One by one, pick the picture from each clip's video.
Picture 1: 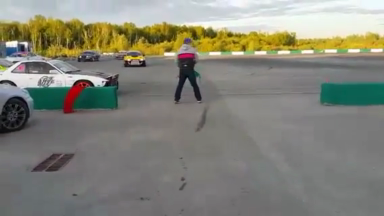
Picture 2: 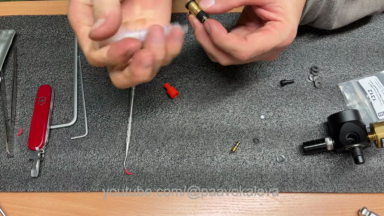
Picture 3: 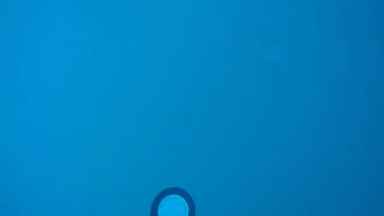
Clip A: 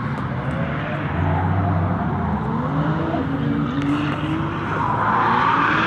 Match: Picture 1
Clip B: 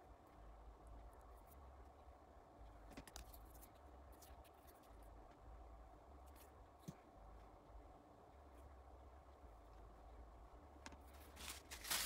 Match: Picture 2